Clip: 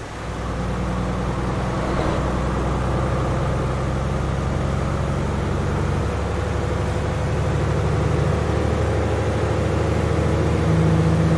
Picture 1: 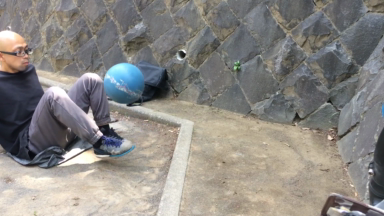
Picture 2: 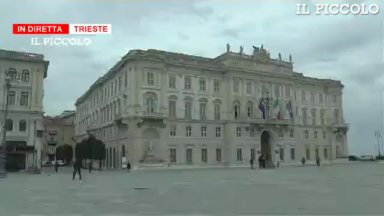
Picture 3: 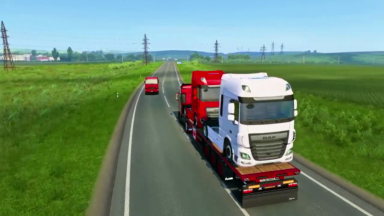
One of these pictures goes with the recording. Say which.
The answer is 3